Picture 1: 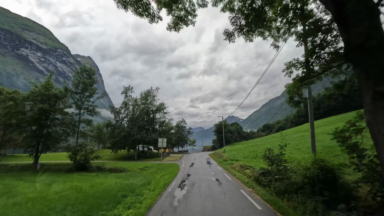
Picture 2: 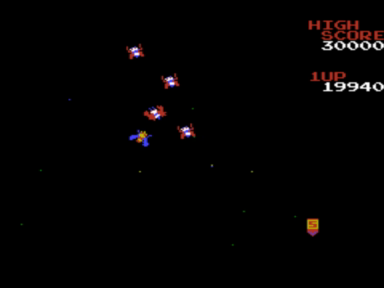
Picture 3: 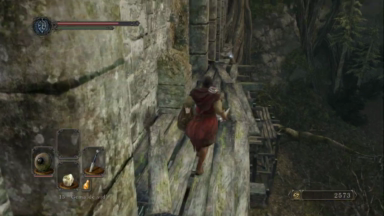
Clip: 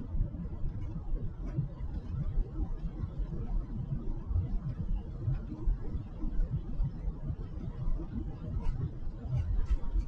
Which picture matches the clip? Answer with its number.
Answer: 1